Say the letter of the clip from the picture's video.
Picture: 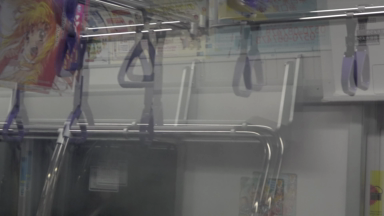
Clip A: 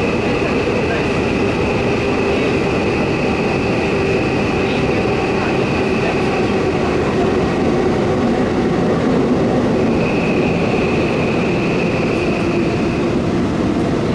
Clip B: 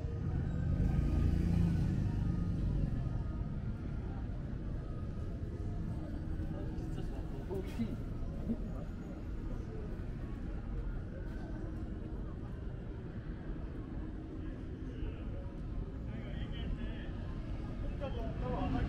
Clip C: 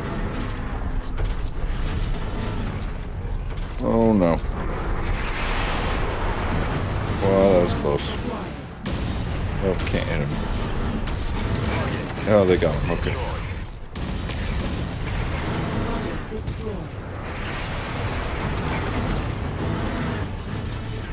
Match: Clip A